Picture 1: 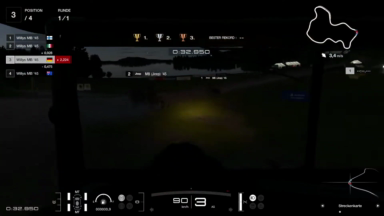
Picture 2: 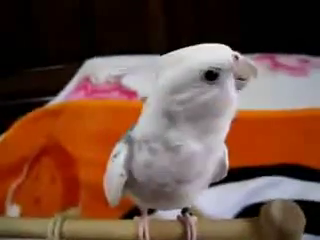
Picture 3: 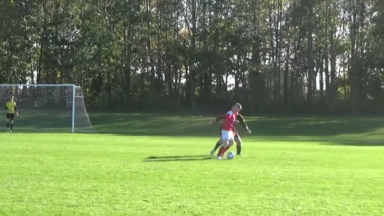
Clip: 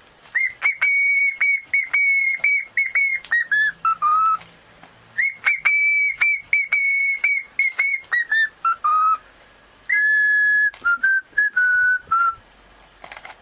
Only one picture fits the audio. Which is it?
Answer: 2